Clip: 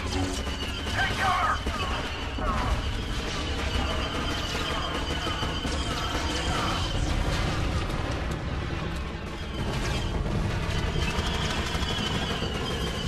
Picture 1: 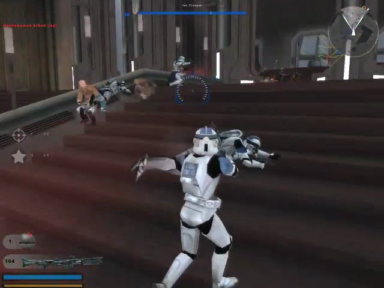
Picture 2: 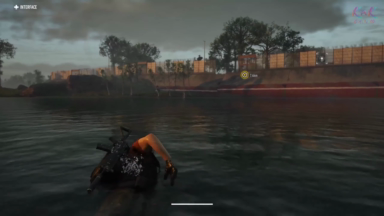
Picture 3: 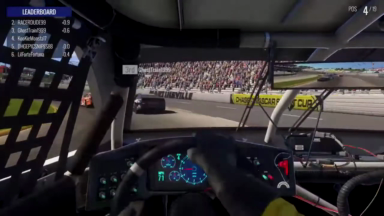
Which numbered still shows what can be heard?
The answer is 1